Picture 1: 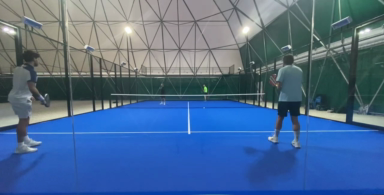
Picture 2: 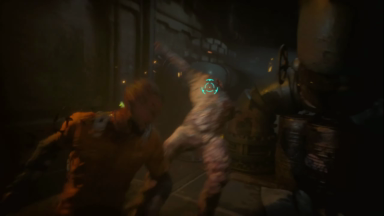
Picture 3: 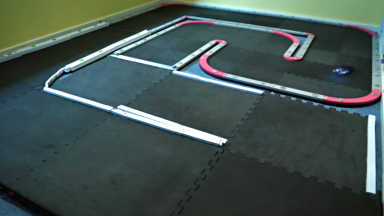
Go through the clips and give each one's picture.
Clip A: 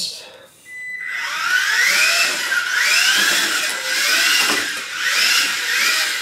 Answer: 3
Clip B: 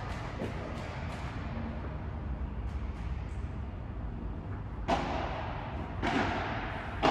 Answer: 1